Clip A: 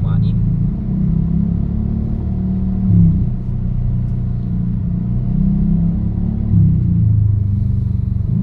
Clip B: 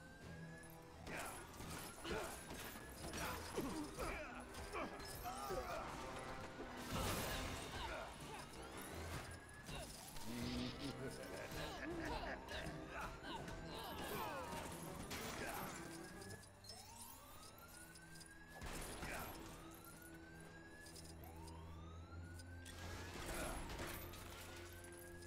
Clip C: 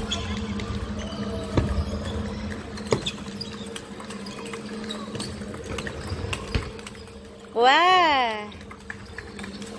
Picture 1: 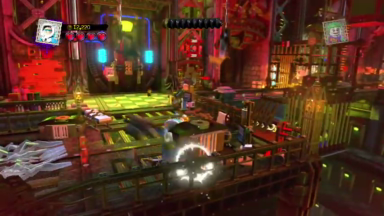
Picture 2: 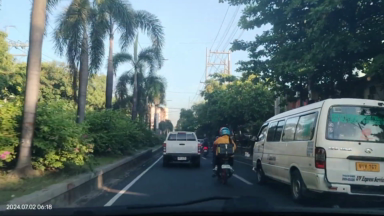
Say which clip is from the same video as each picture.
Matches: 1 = B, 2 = A